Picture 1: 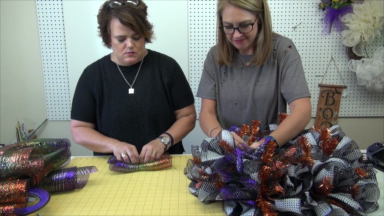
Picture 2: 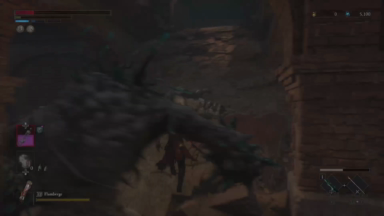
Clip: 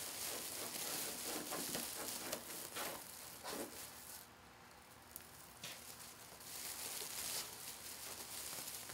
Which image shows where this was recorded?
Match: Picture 1